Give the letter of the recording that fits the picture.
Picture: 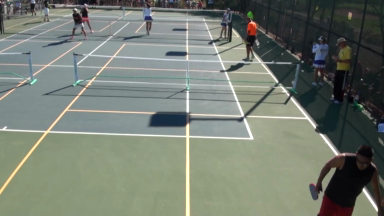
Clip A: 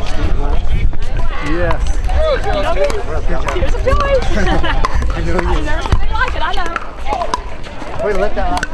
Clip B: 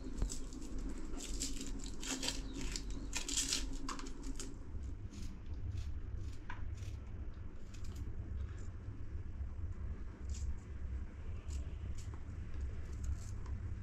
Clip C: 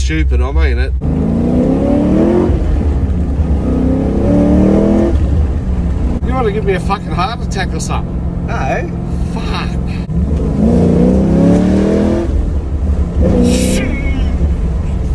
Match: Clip A